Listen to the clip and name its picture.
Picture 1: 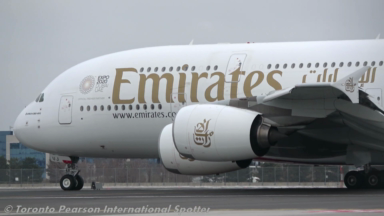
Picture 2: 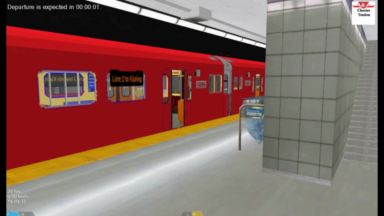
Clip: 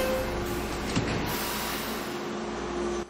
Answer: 2